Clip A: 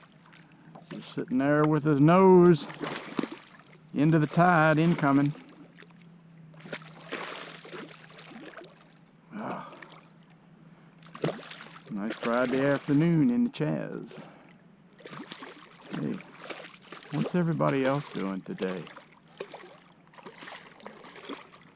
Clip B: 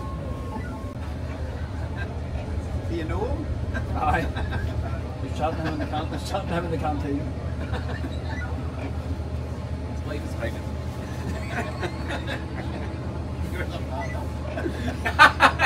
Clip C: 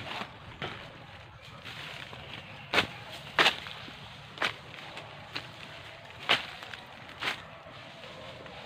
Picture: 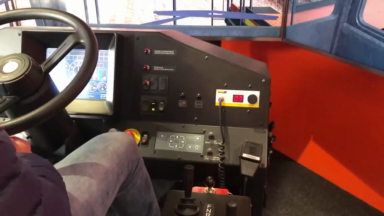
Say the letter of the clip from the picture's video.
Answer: B